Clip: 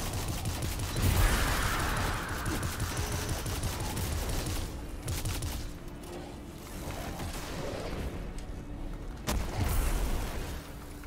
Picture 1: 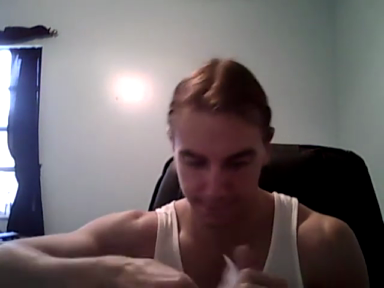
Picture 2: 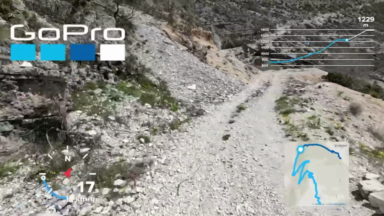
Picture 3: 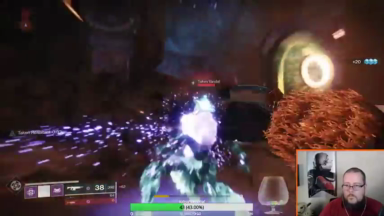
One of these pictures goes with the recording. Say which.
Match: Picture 3